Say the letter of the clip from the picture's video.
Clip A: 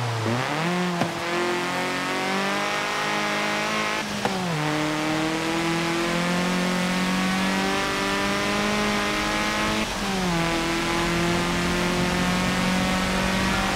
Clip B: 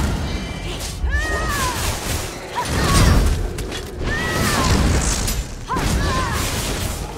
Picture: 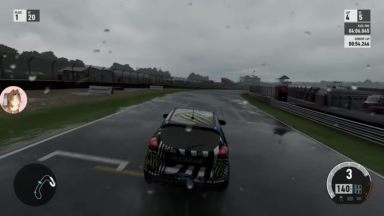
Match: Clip A